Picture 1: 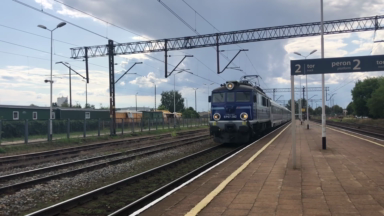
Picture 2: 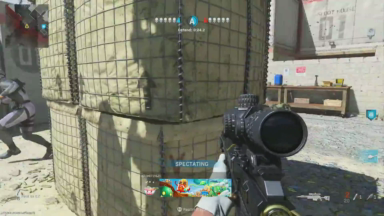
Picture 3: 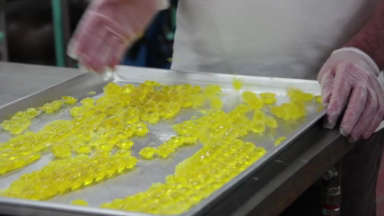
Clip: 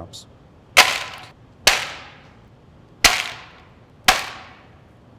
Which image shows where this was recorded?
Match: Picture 3